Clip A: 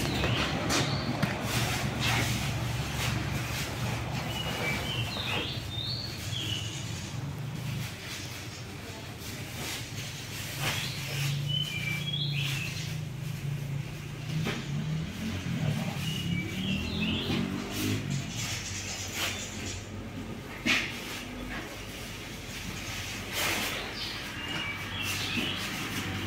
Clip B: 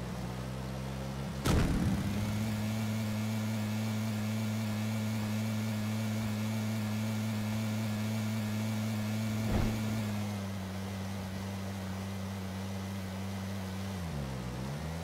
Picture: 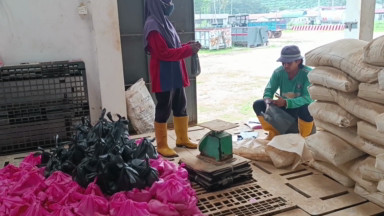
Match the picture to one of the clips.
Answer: A